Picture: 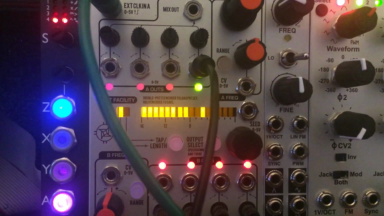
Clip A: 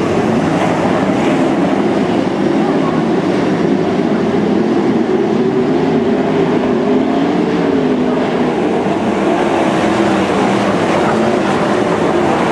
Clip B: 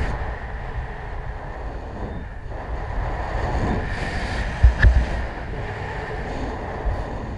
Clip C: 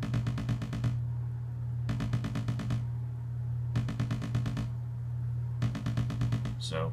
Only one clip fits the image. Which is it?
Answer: C